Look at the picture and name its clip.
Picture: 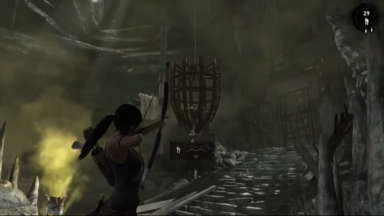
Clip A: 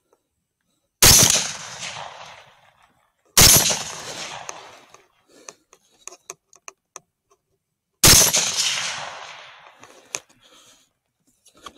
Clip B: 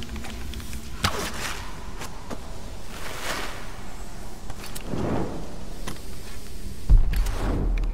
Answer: B